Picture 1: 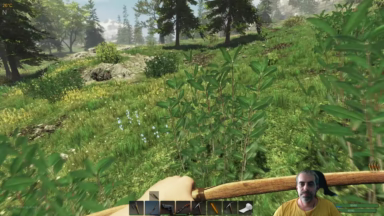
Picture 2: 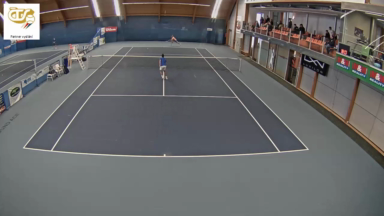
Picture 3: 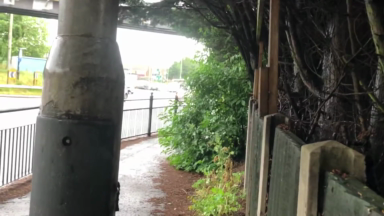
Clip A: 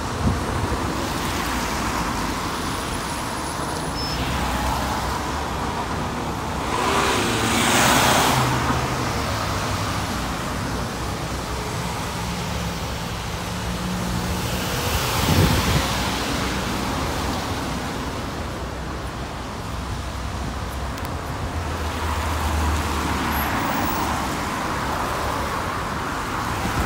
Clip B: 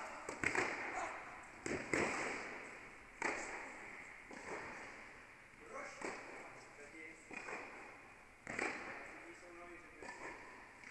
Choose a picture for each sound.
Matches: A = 3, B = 2